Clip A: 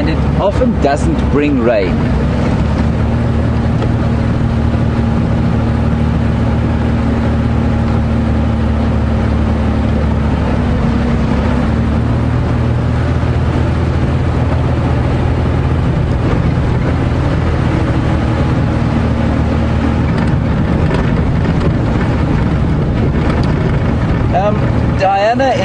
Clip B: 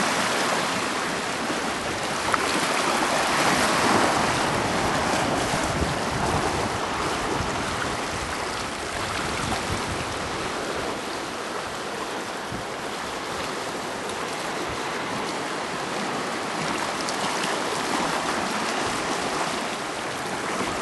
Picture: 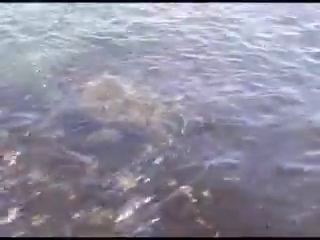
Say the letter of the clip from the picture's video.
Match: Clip B